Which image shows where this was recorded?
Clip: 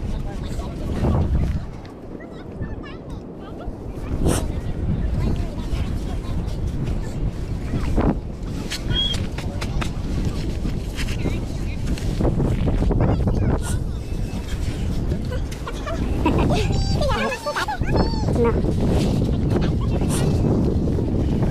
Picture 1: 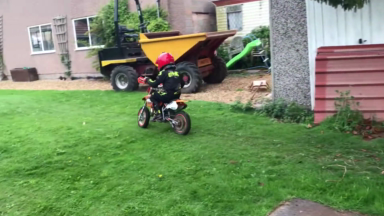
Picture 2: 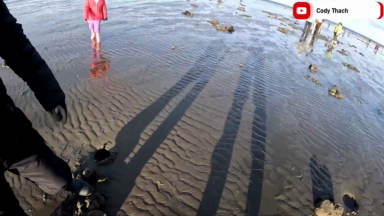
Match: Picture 2